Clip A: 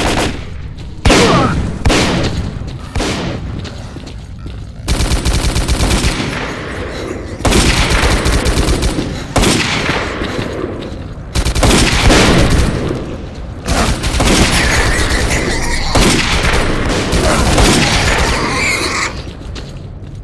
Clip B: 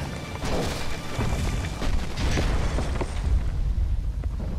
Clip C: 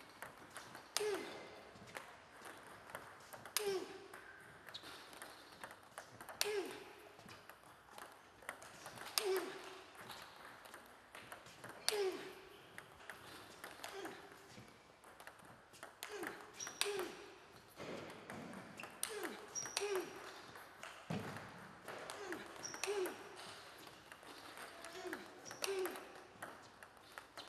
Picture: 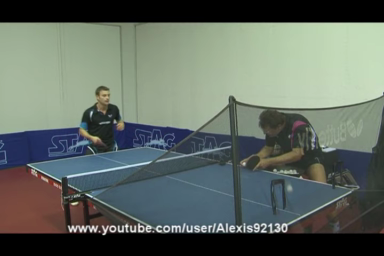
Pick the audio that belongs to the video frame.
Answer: C